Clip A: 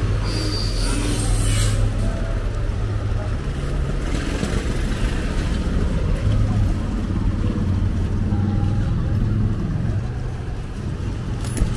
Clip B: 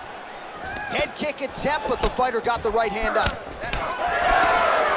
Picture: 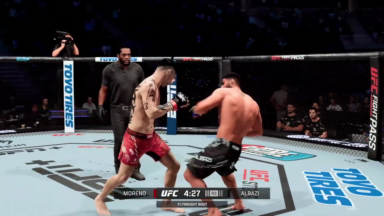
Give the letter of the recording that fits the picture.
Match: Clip B